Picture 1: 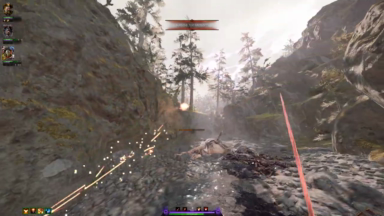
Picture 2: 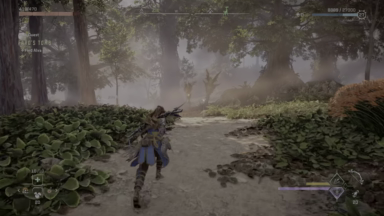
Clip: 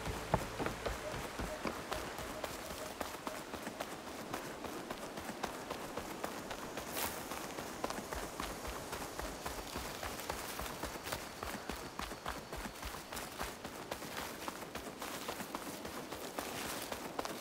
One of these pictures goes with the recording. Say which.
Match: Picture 2